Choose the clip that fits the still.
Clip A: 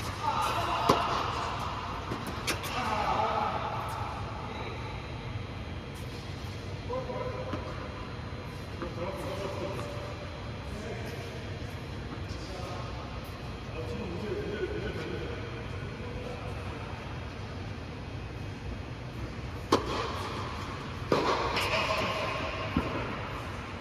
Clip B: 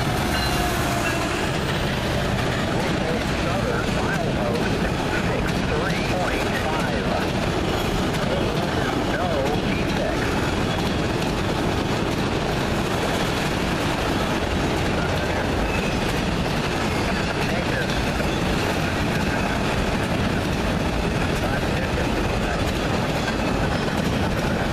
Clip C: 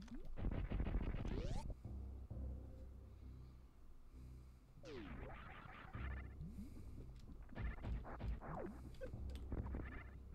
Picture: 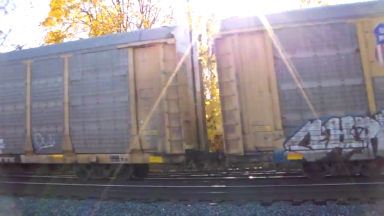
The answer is B